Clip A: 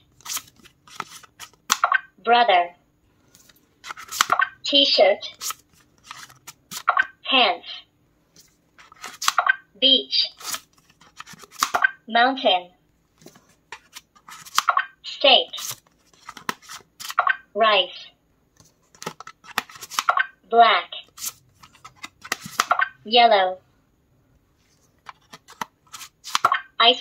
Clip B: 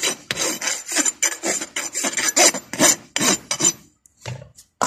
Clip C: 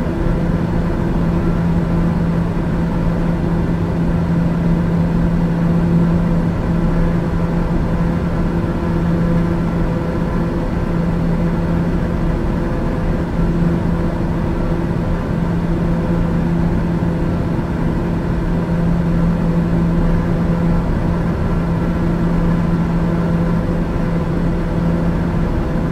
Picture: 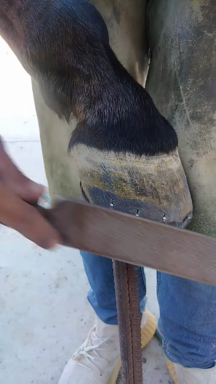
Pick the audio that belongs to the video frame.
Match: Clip B